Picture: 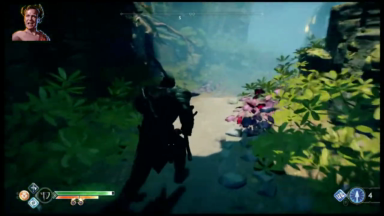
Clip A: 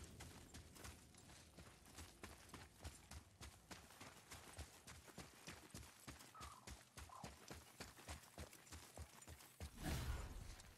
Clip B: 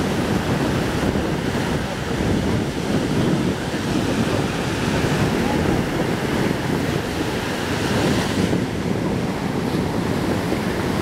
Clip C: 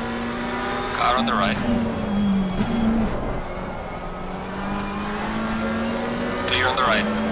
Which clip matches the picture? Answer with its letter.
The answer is A